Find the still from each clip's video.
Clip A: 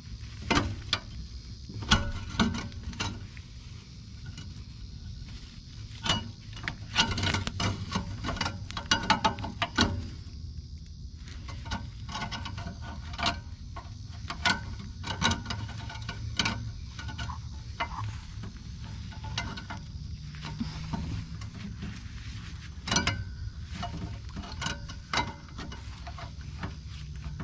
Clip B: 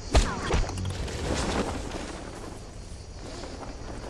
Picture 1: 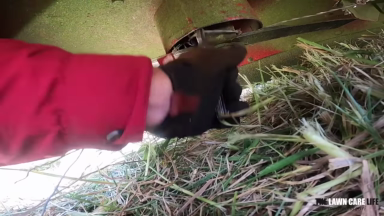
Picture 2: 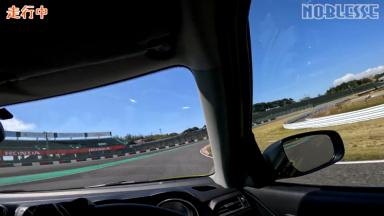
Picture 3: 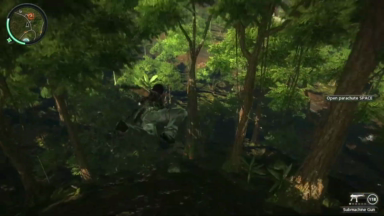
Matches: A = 1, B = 3